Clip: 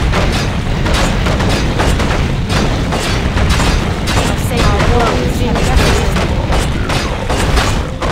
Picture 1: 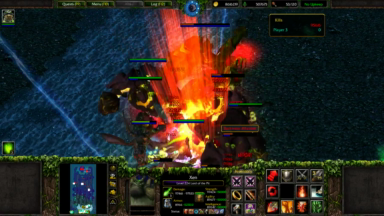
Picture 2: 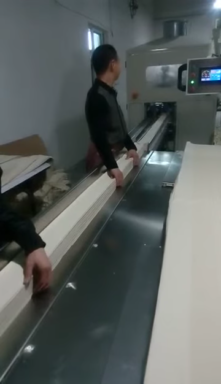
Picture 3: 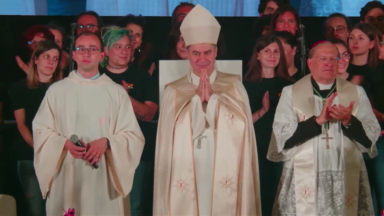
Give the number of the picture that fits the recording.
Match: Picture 1